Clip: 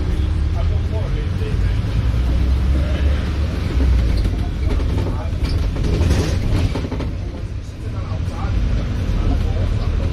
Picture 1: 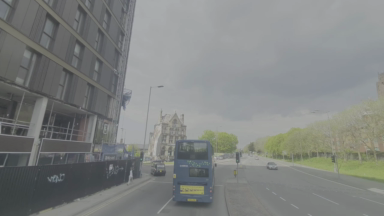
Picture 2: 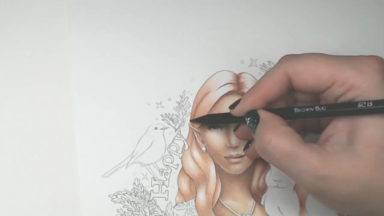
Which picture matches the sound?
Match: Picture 1